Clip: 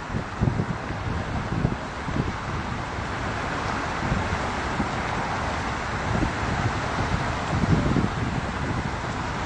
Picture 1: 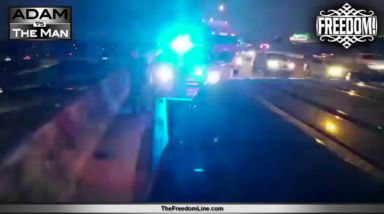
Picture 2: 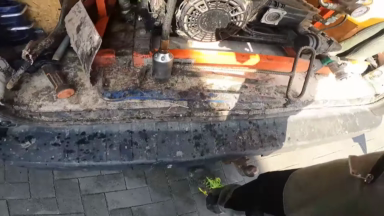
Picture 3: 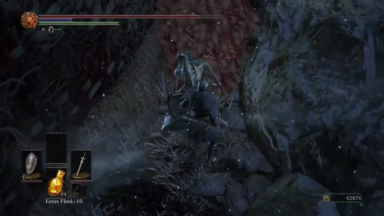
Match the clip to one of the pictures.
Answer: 1